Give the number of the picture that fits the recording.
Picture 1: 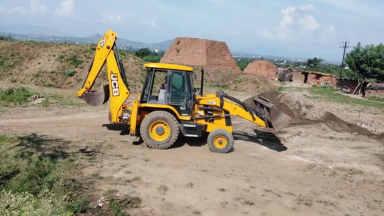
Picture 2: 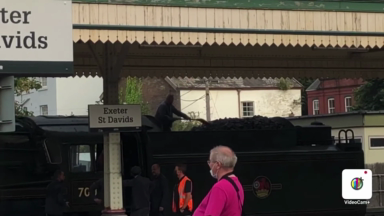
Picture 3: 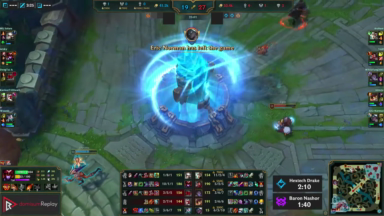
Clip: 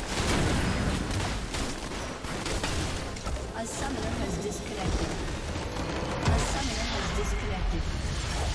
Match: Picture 3